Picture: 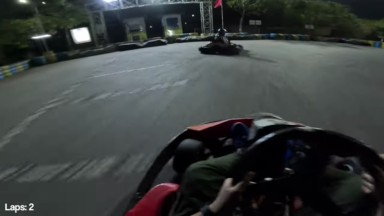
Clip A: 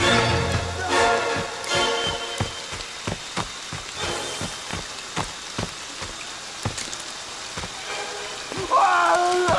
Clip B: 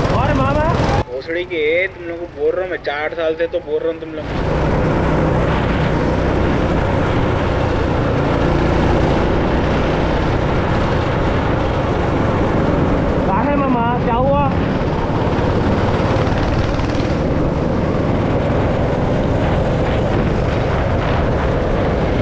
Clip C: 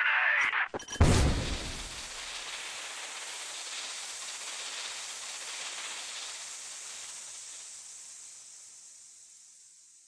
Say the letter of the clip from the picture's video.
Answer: B